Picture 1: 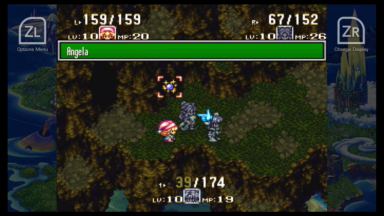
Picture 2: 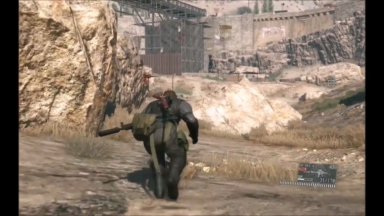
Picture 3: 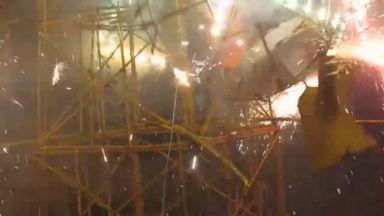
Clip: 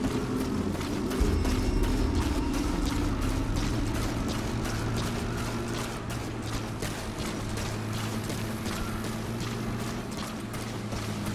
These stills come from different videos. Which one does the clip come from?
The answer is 2